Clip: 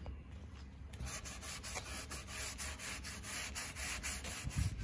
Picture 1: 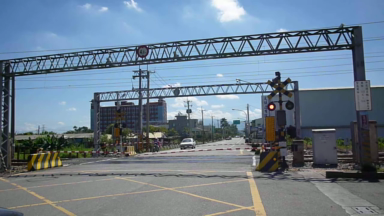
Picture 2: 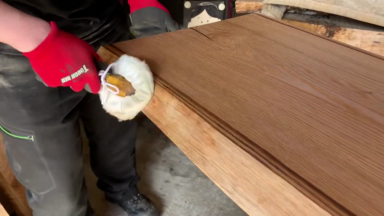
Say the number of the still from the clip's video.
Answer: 2